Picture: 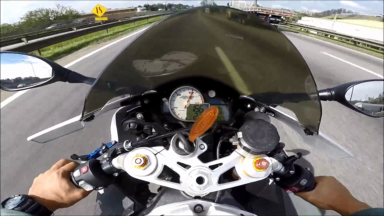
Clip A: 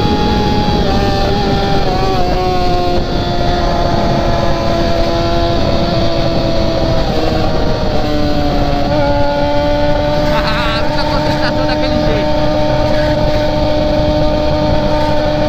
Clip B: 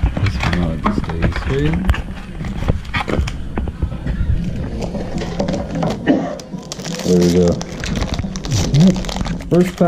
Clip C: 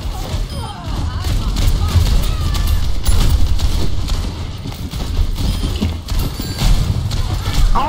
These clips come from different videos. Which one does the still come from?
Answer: A